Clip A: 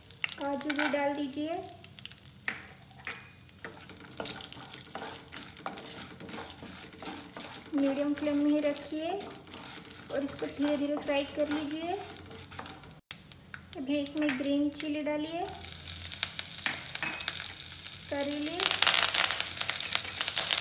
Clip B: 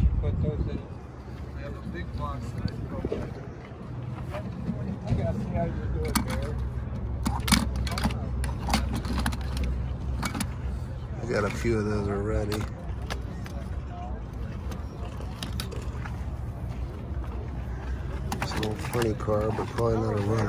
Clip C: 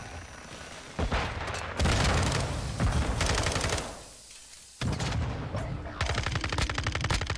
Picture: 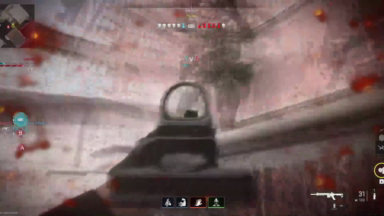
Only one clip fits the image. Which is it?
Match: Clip C